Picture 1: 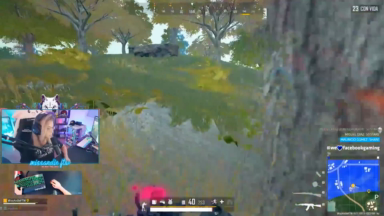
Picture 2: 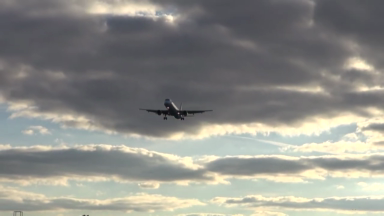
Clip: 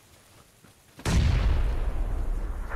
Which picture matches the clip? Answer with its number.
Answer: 1